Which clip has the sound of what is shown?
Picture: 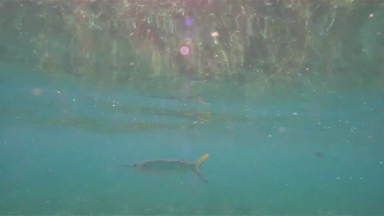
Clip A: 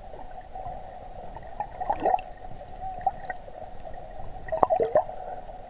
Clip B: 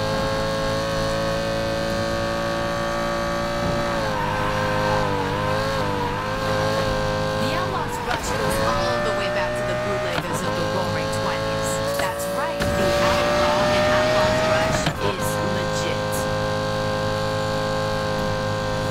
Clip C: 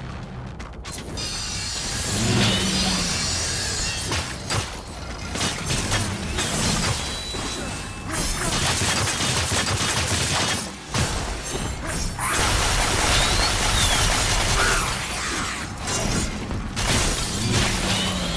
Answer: A